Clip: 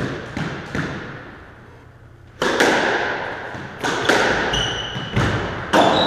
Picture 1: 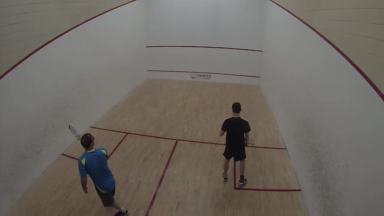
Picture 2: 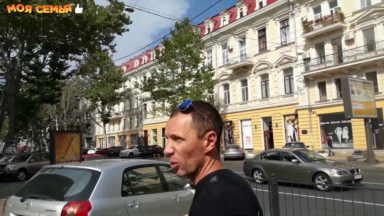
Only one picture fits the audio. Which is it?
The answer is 1